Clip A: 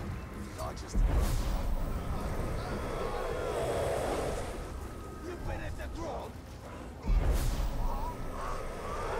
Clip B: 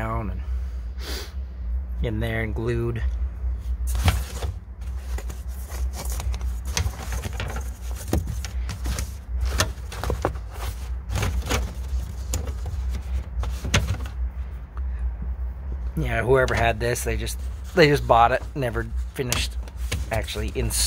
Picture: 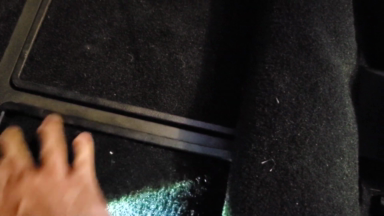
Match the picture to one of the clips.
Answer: B